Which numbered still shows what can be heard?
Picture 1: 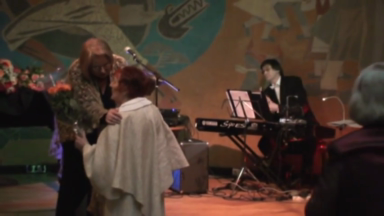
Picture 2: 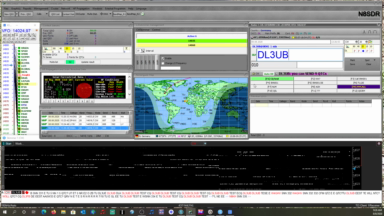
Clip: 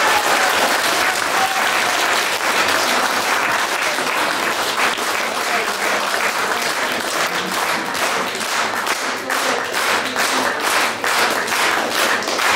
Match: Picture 1